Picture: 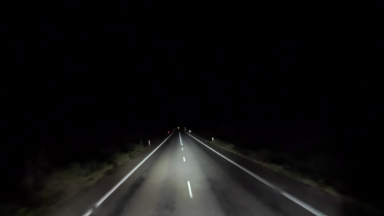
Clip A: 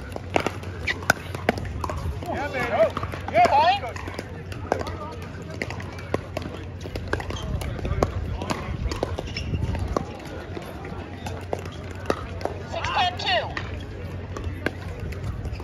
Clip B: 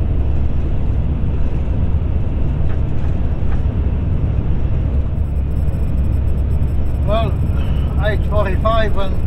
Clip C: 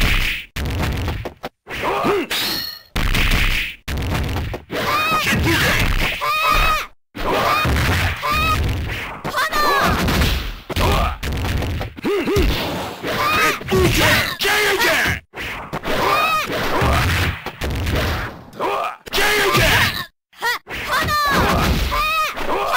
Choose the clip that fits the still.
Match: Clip B